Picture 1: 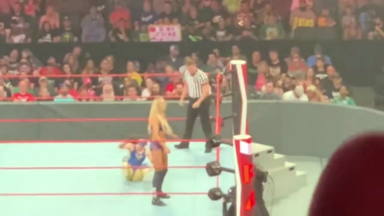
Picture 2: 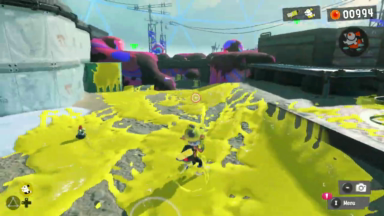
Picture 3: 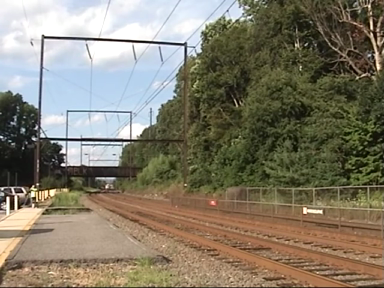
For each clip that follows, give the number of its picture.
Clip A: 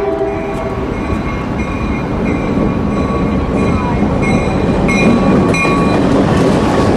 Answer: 3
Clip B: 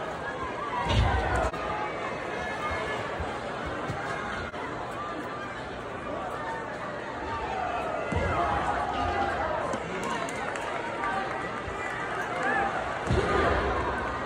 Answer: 1